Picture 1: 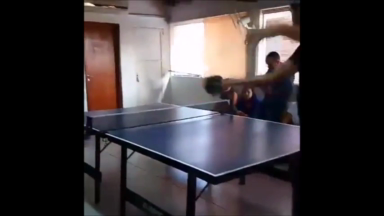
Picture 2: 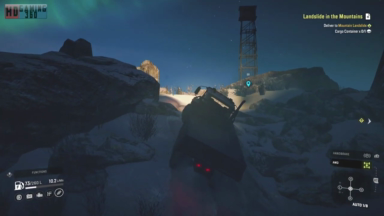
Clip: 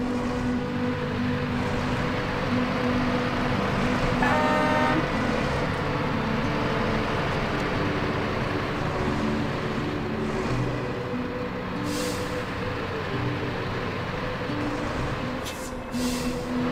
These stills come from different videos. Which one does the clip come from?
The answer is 2